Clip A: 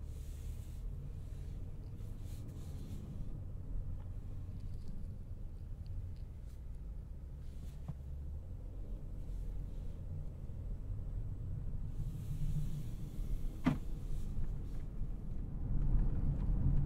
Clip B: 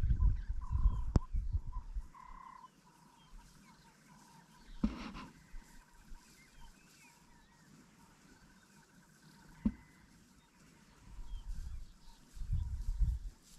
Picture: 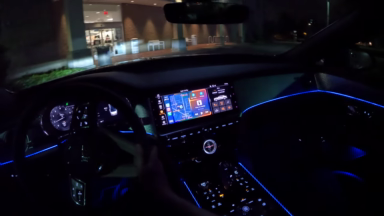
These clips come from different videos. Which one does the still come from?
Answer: A